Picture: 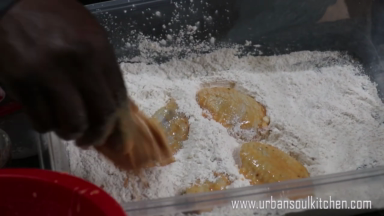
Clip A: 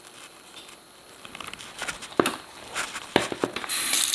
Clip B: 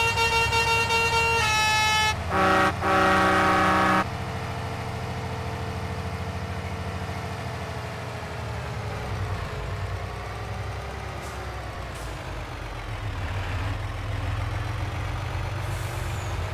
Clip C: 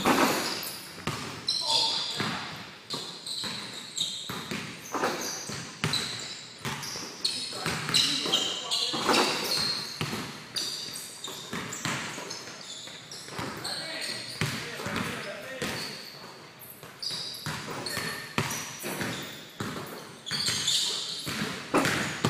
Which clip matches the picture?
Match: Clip A